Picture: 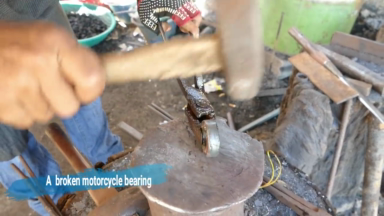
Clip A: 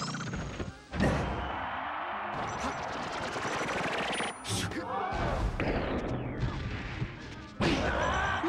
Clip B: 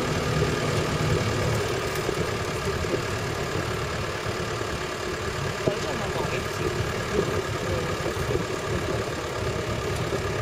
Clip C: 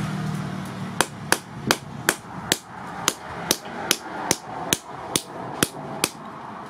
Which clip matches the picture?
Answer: C